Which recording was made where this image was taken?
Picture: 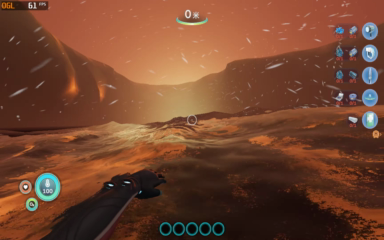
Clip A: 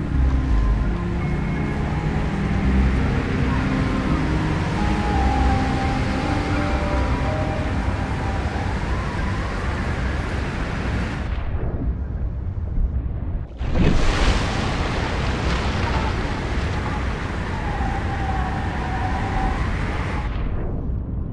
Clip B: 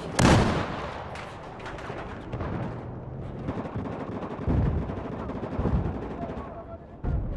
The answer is A